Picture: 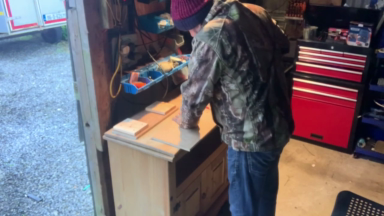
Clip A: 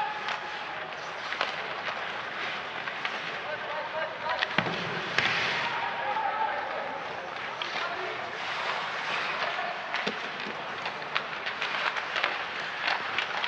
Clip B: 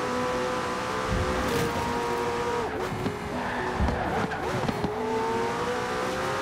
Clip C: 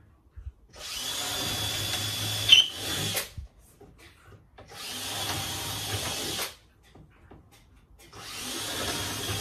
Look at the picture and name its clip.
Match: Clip C